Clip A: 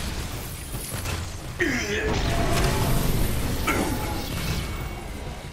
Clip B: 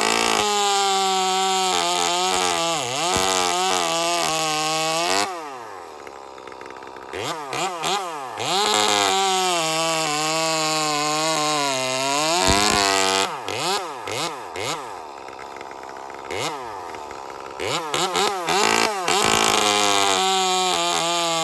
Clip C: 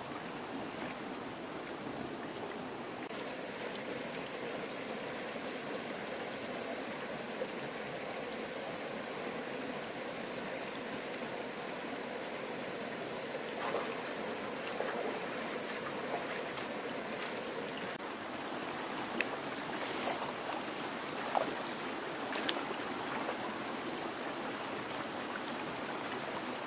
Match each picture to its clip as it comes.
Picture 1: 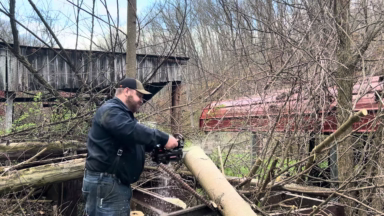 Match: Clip B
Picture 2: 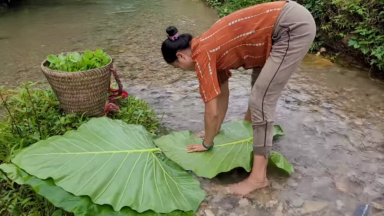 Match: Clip C